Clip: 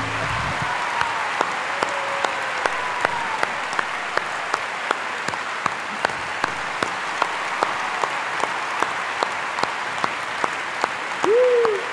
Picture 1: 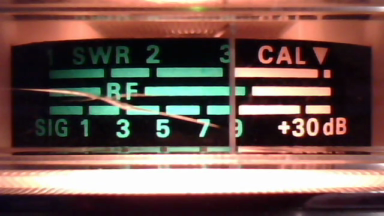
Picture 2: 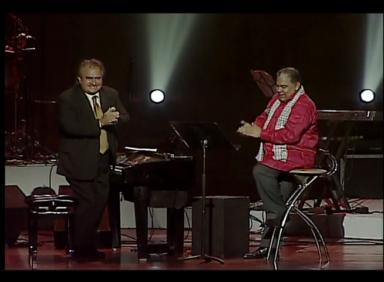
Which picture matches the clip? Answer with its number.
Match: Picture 2